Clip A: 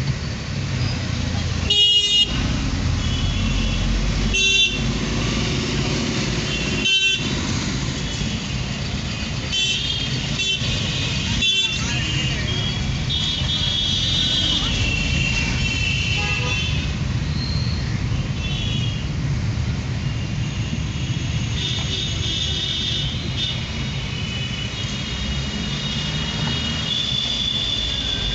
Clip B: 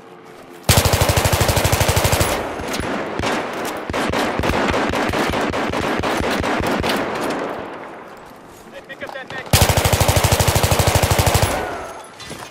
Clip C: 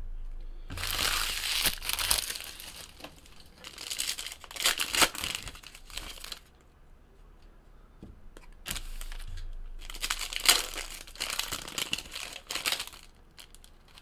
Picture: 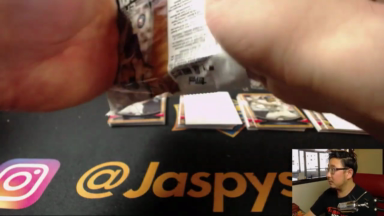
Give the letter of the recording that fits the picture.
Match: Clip C